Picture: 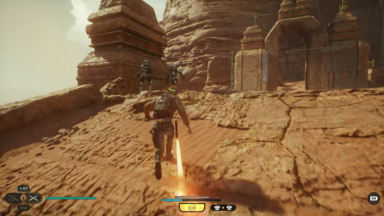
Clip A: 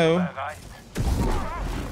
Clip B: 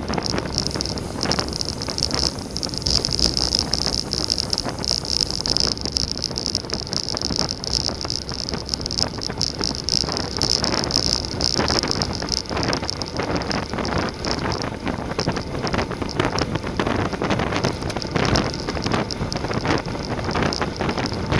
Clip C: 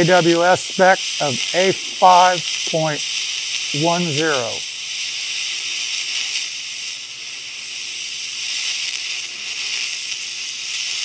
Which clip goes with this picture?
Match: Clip A